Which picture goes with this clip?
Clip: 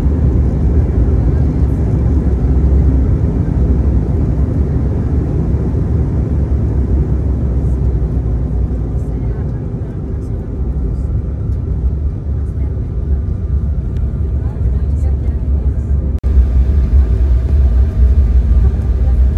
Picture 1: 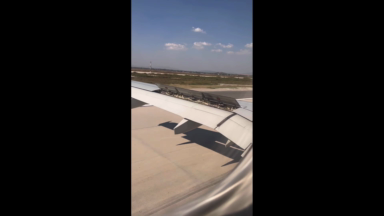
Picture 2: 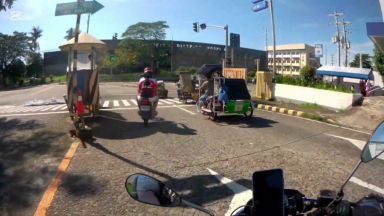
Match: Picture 1